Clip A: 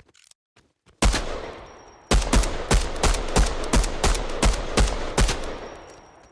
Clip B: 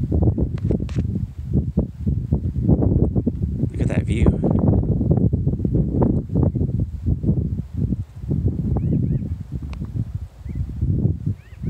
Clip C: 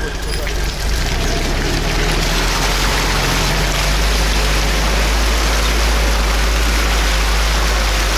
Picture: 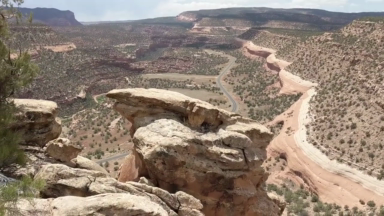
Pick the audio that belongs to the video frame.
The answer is B